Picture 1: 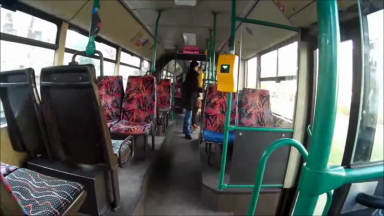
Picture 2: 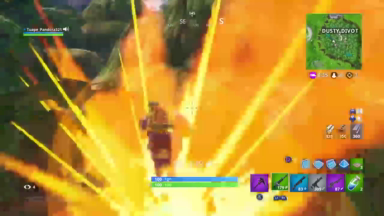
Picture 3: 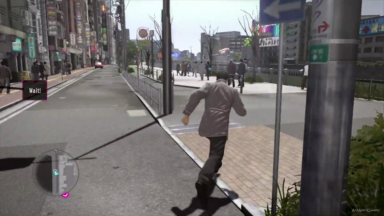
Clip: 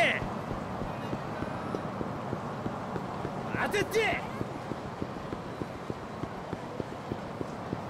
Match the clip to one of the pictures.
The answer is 3